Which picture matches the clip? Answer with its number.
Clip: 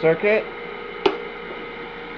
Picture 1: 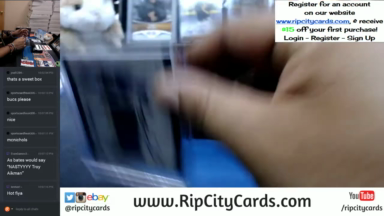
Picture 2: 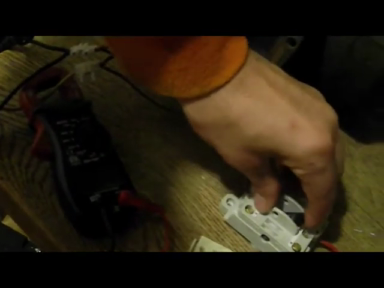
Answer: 2